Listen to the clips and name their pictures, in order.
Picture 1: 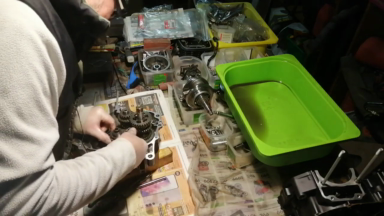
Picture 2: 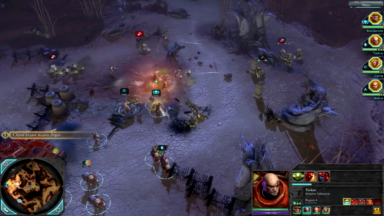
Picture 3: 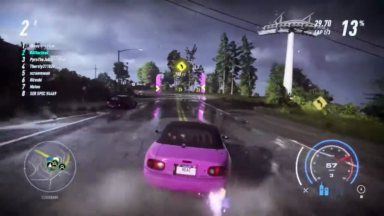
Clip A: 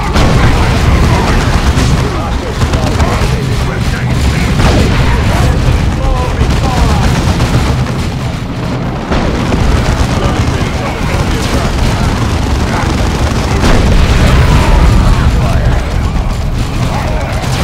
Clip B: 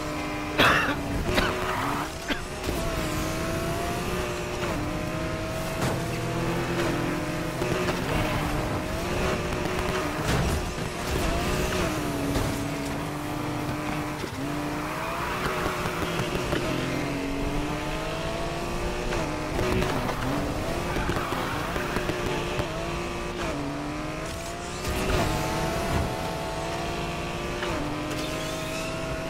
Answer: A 2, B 3